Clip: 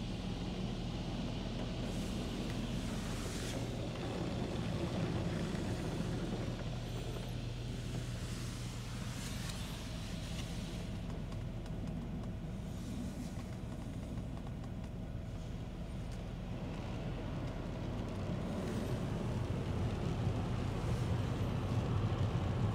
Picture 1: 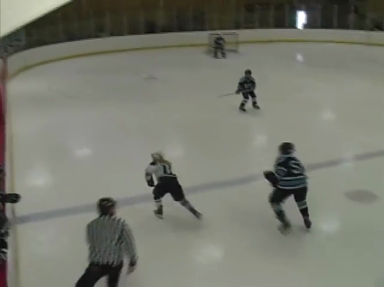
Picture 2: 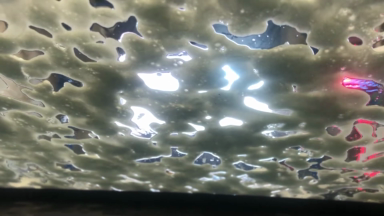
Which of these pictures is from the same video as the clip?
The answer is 2